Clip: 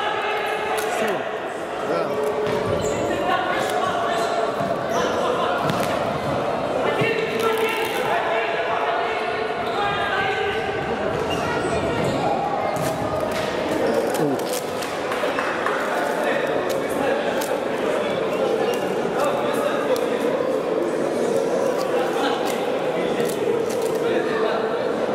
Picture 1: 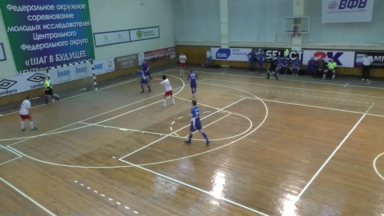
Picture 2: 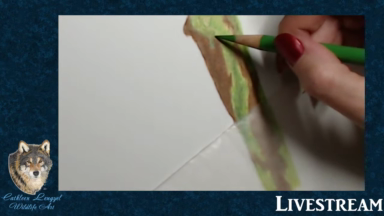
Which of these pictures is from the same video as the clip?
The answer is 1